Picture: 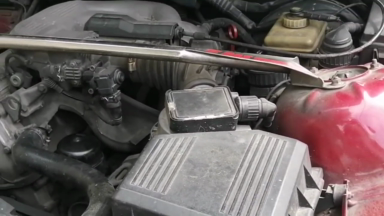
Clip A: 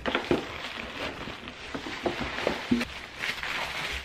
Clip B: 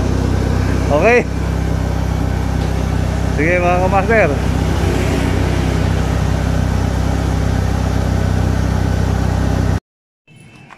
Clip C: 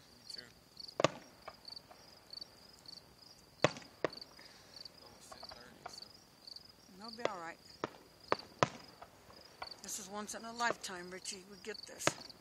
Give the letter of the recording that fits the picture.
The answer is B